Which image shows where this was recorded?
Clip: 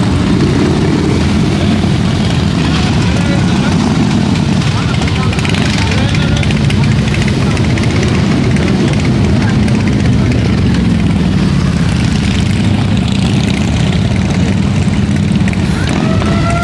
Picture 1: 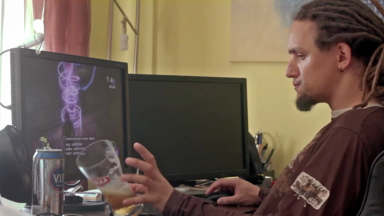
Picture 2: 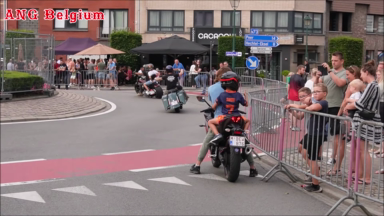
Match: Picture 2